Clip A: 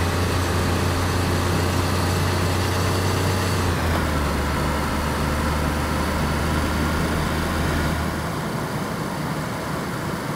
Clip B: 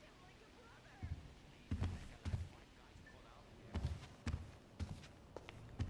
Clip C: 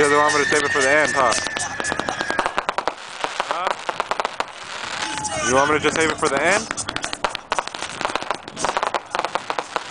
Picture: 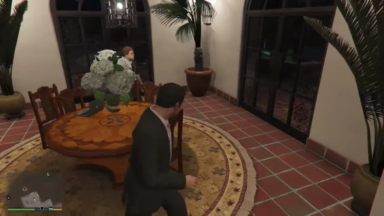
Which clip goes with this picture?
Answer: B